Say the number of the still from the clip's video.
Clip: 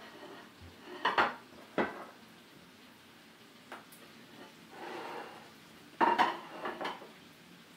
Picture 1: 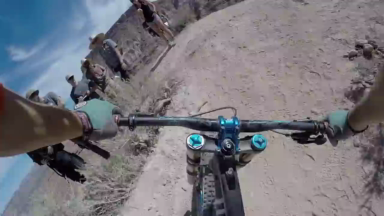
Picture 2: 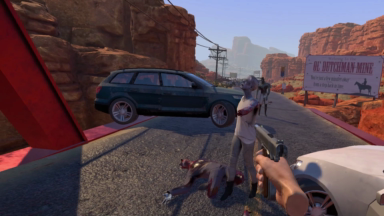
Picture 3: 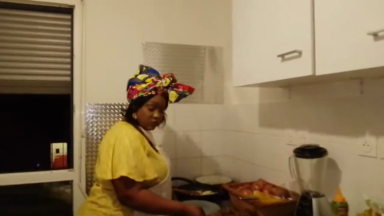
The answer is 3